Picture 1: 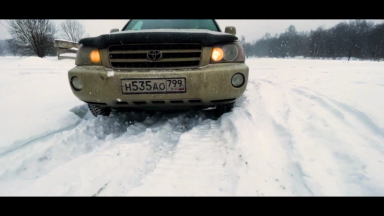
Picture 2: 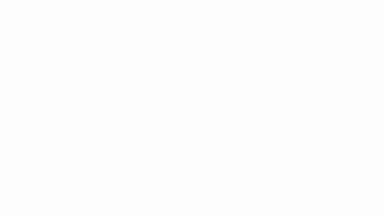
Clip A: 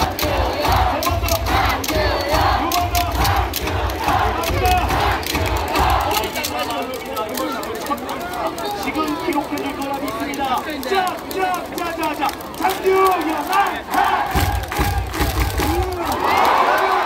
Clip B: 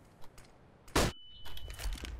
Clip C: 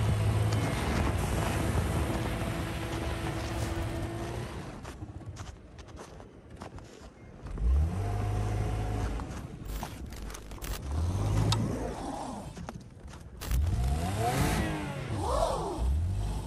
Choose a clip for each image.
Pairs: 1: C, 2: B